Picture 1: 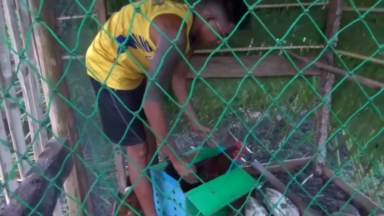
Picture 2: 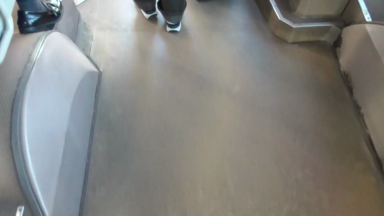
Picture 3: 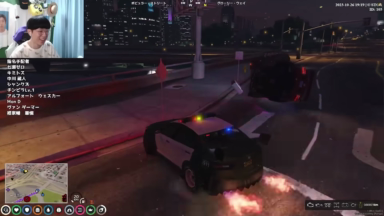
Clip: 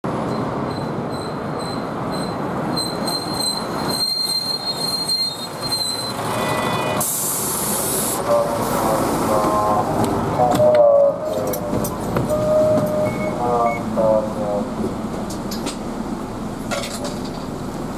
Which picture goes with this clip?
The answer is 2